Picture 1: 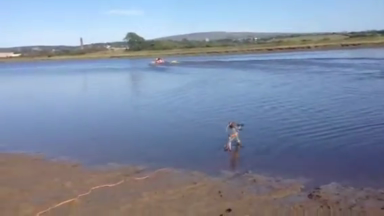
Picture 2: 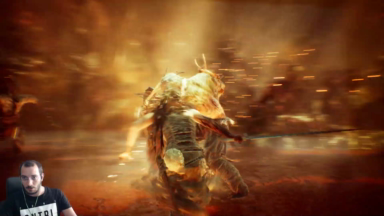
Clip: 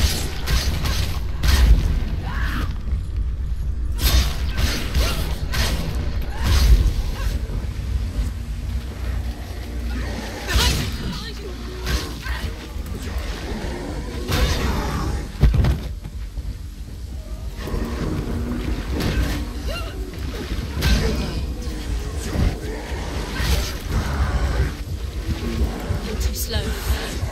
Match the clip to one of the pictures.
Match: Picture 2